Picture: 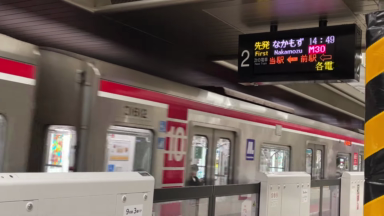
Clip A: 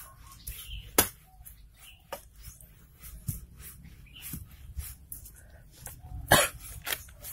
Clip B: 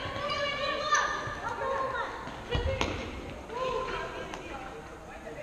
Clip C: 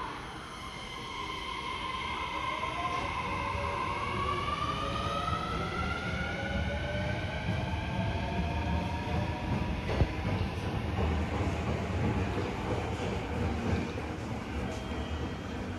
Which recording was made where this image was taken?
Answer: C